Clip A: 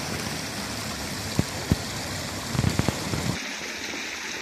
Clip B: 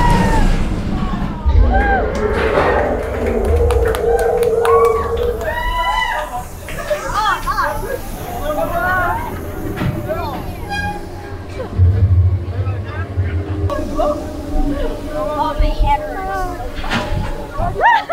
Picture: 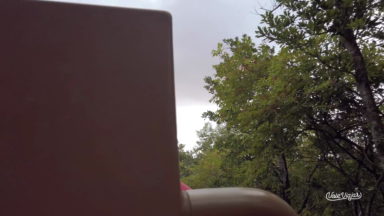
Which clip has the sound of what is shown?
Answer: B